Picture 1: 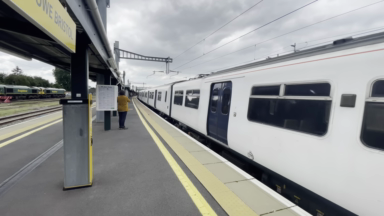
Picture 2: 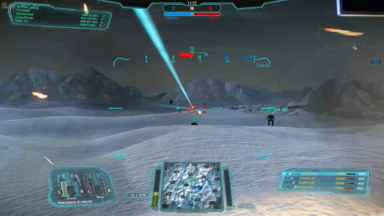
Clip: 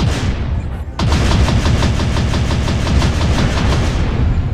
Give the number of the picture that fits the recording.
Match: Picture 2